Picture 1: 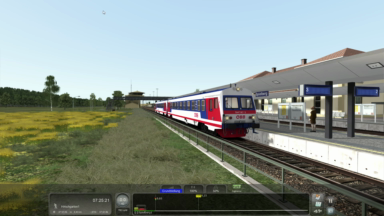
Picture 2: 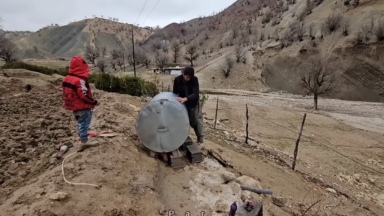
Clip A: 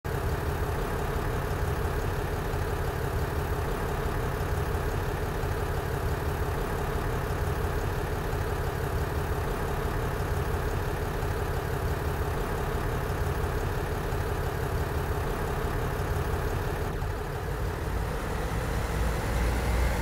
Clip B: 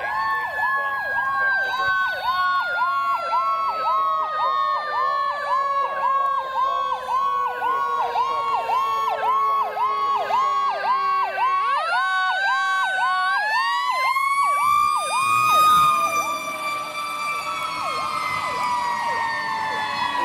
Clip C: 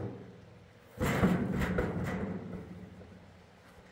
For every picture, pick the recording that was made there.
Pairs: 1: A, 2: C